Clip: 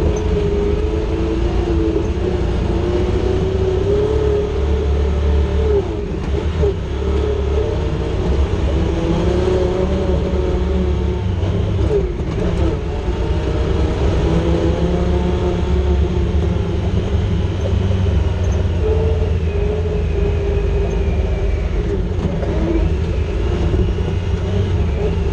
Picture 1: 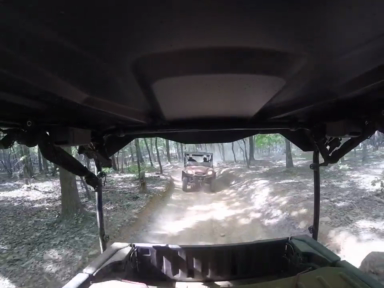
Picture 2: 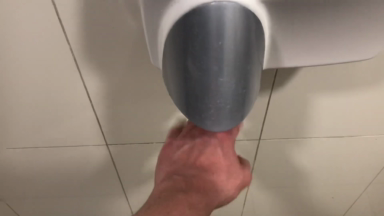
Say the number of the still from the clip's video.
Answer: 1